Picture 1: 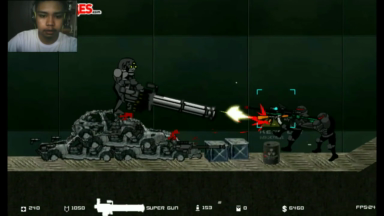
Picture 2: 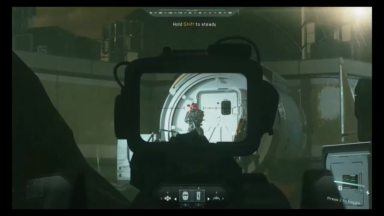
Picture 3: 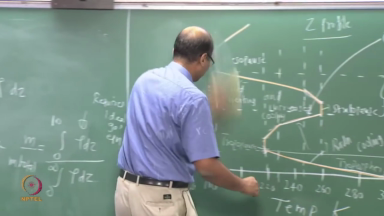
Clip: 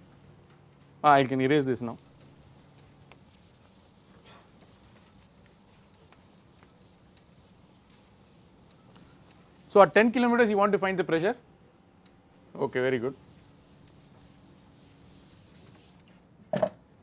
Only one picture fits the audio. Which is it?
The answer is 3